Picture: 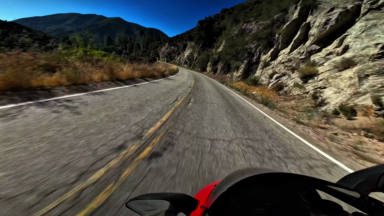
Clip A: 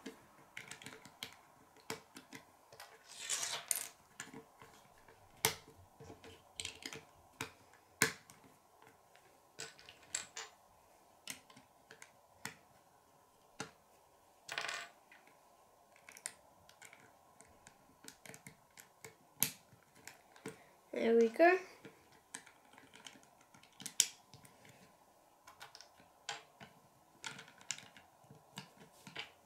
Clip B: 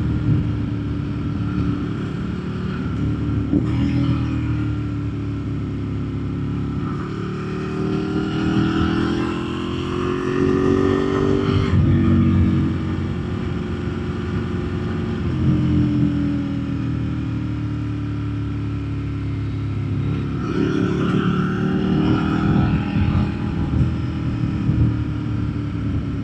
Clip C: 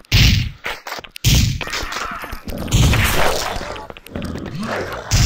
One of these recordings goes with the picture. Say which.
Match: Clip B